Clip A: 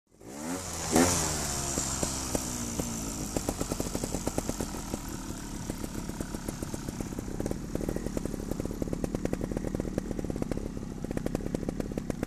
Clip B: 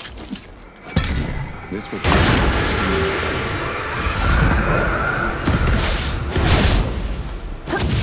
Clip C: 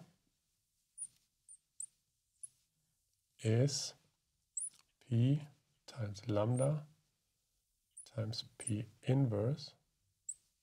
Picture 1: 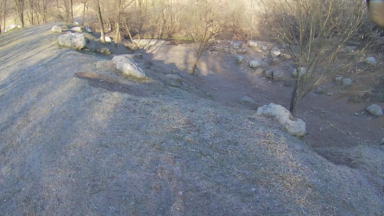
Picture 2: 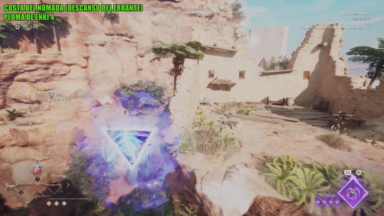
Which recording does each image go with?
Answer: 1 A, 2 B